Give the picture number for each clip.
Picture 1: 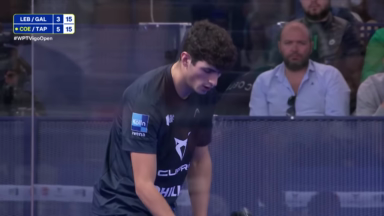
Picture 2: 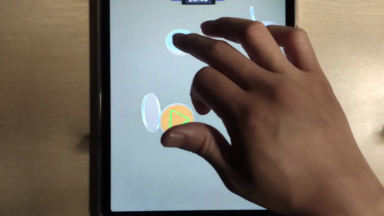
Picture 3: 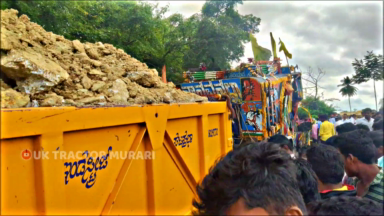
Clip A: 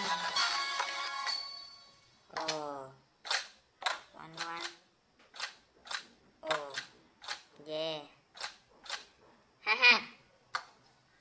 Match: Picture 2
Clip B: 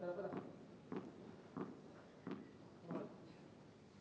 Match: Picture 1